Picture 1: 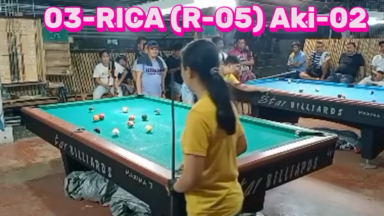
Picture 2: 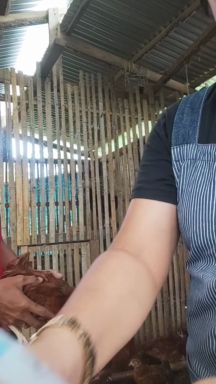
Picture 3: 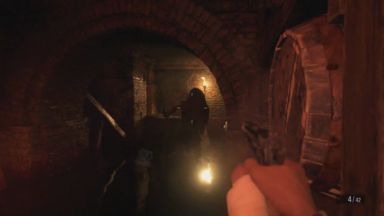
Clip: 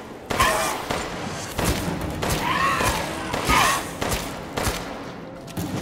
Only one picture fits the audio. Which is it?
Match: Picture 3